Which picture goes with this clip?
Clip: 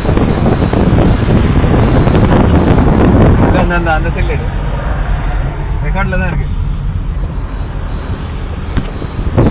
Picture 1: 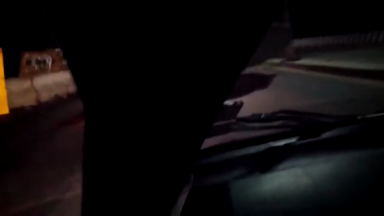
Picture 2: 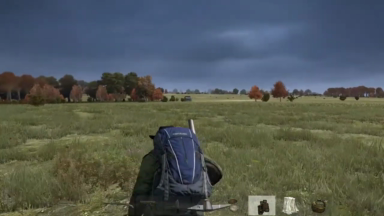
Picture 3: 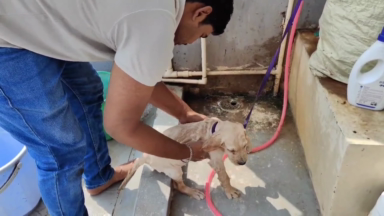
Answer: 1